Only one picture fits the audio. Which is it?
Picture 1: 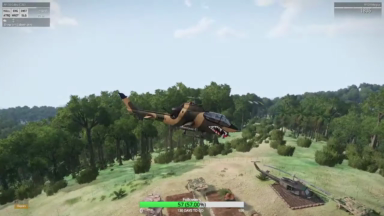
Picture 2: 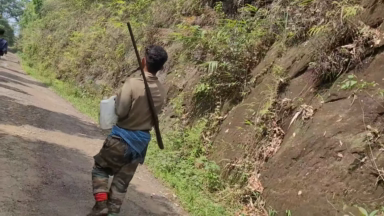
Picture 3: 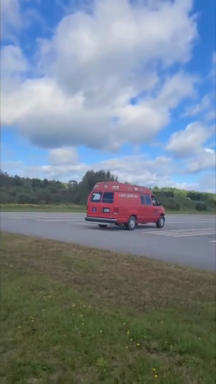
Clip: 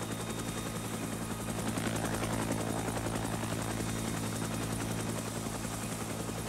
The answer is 1